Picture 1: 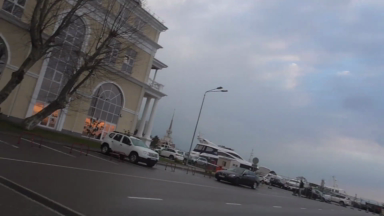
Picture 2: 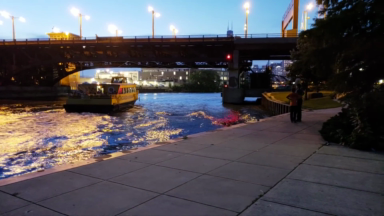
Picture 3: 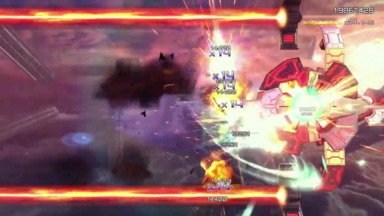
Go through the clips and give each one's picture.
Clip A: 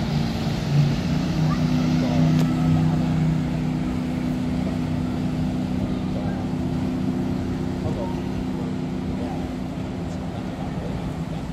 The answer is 2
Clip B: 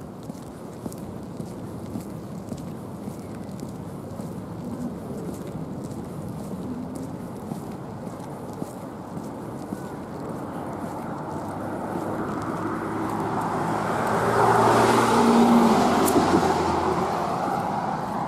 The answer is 1